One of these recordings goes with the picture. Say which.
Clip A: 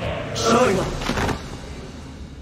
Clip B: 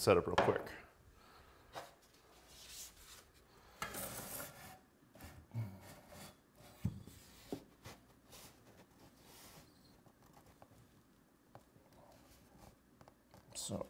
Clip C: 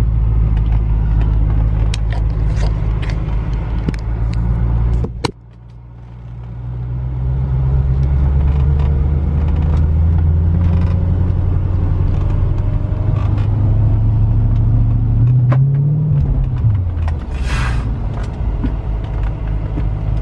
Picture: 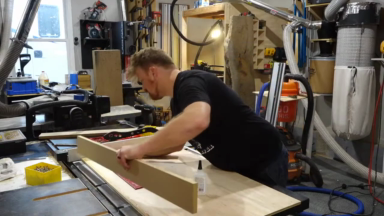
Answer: B